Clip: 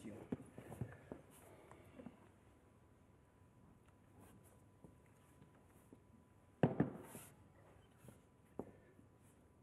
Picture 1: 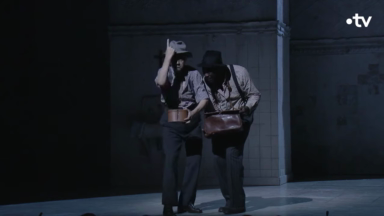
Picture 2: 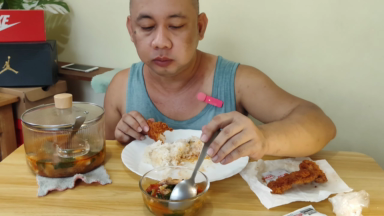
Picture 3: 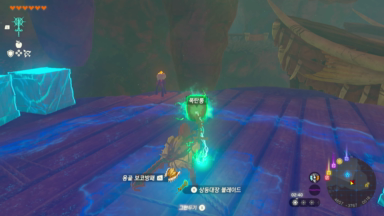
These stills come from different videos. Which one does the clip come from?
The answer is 1